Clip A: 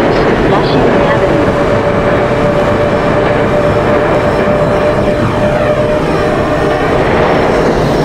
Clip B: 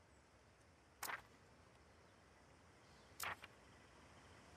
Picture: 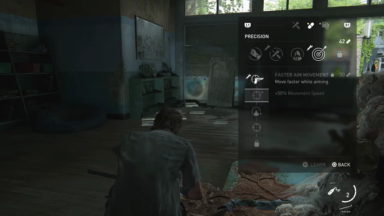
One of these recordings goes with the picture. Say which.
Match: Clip B